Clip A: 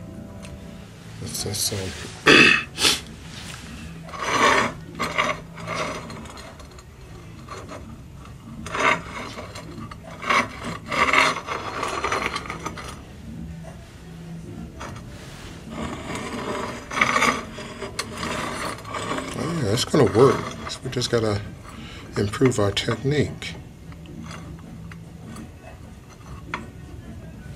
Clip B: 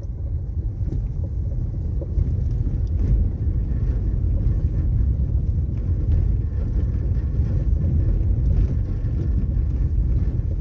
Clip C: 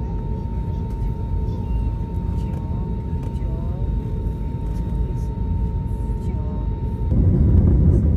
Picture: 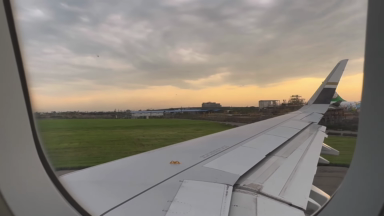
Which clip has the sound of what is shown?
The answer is C